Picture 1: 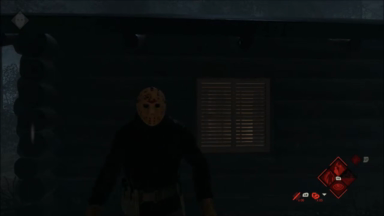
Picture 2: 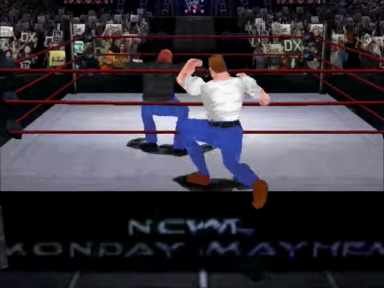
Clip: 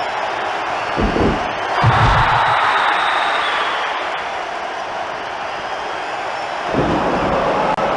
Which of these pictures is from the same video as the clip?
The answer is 2